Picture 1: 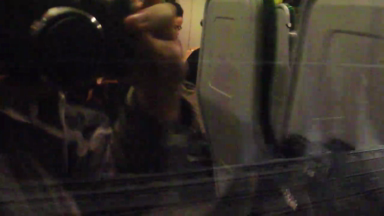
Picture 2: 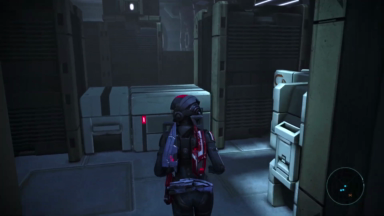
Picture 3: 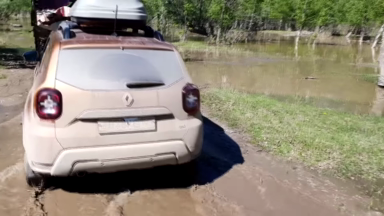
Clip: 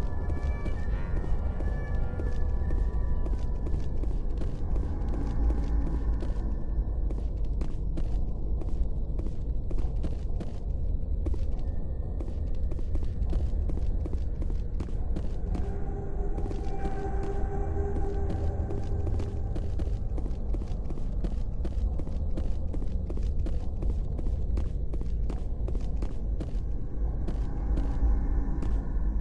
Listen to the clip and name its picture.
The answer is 2